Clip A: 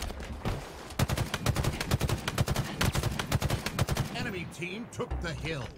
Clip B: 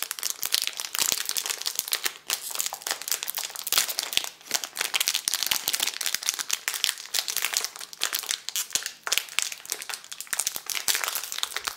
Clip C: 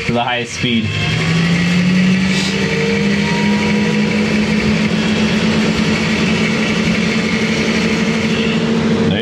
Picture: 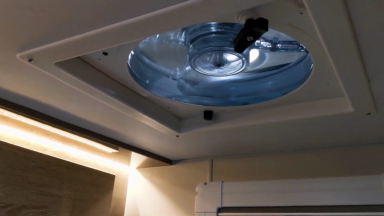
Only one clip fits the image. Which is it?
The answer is C